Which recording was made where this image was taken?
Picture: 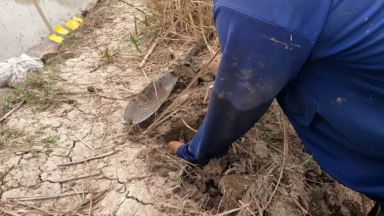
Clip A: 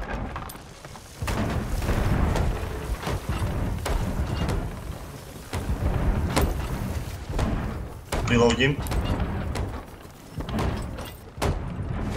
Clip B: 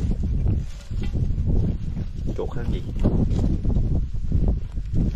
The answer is B